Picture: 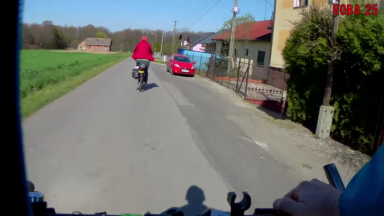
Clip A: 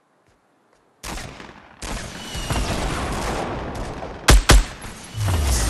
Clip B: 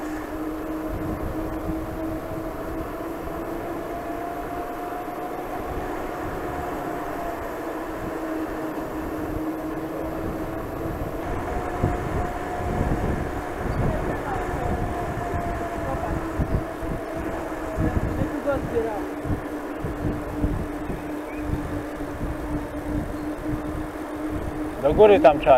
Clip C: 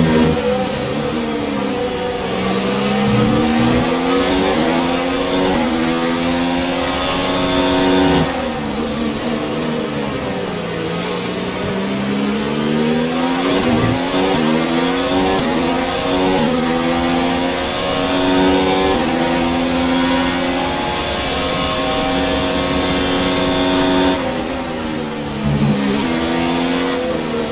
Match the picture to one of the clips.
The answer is B